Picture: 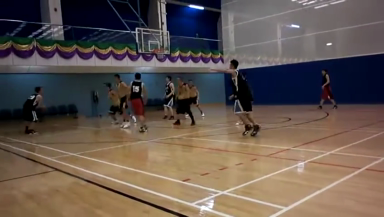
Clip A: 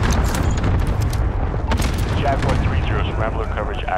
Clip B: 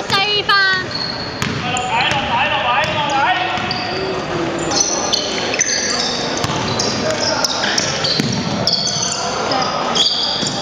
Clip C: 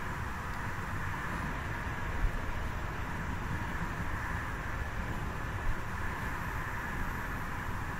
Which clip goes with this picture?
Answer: B